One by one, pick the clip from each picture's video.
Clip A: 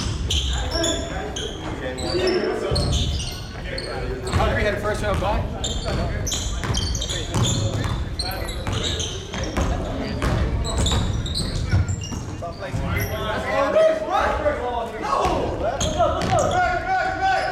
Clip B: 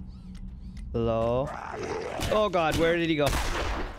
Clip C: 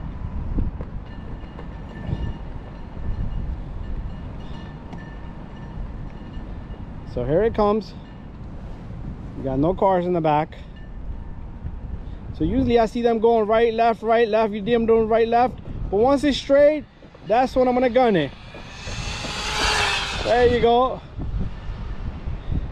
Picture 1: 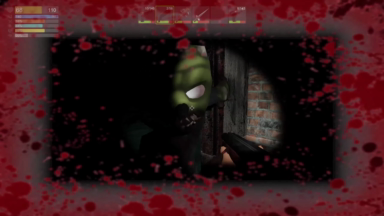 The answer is B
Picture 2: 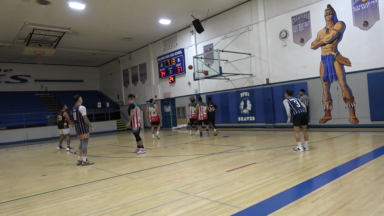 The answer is A